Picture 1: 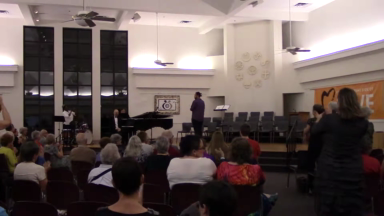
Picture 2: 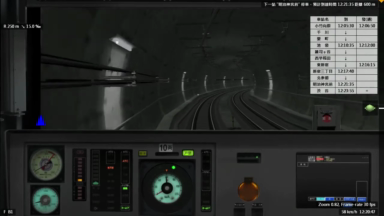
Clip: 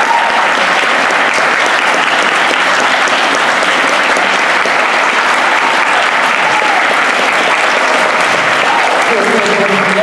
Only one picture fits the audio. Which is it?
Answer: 1